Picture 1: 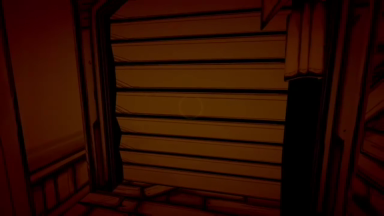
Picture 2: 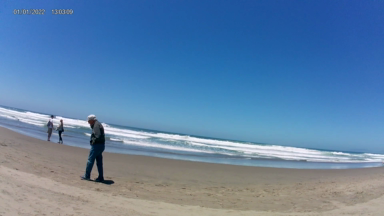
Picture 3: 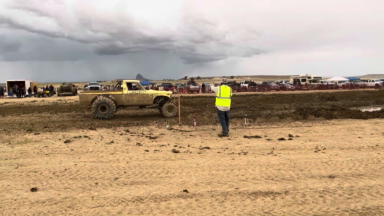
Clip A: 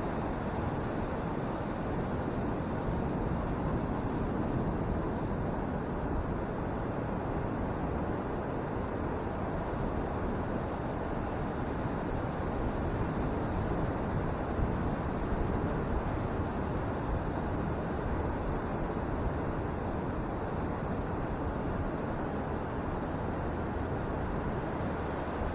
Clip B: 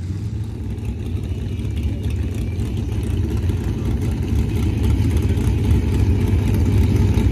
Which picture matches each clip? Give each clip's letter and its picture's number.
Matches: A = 2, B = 3